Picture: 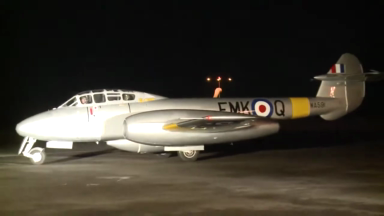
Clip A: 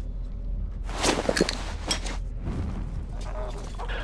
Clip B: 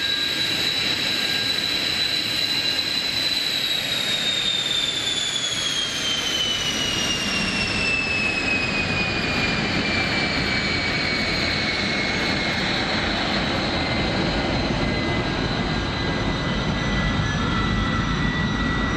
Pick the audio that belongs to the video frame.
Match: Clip B